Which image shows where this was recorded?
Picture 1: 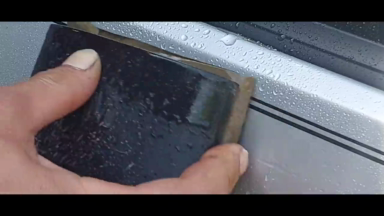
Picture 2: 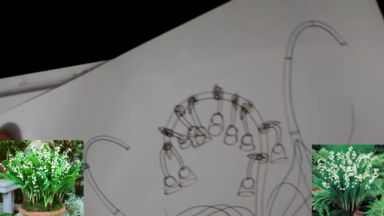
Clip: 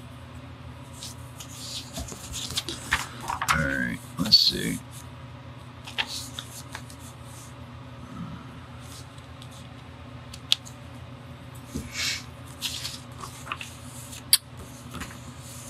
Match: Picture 2